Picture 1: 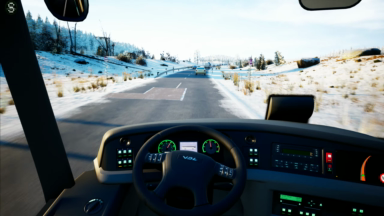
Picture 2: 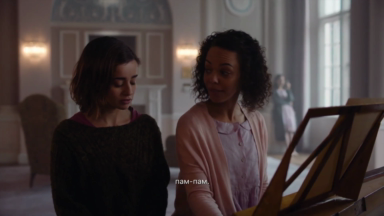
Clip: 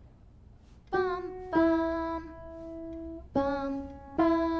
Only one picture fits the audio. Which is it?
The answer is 2